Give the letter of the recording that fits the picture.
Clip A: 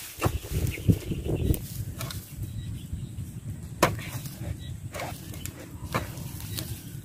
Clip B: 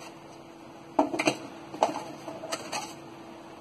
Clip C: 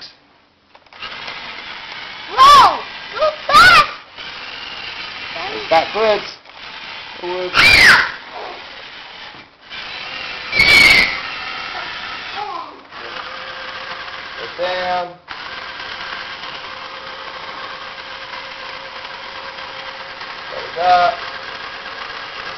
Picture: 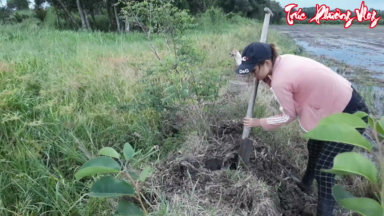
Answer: A